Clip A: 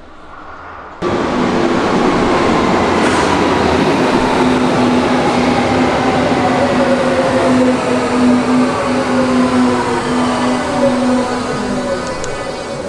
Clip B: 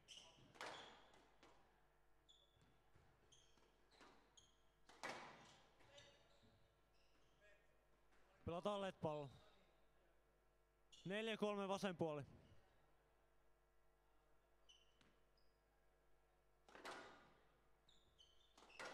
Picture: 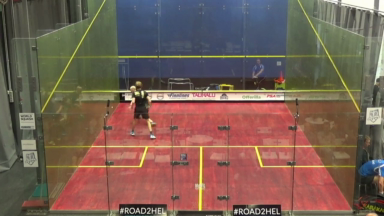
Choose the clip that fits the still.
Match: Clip B